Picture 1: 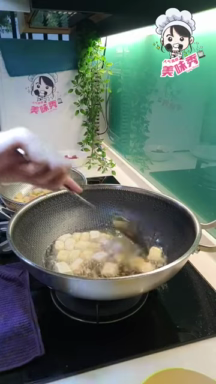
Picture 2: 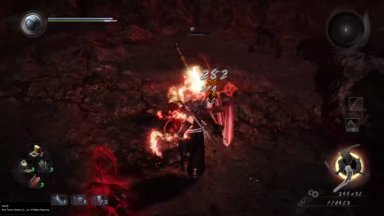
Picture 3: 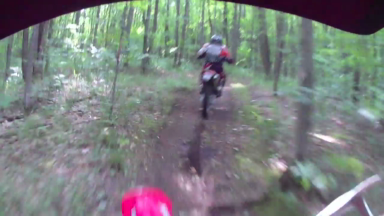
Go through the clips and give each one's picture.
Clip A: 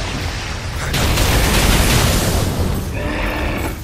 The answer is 2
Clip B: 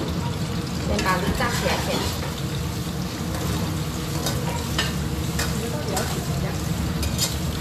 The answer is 1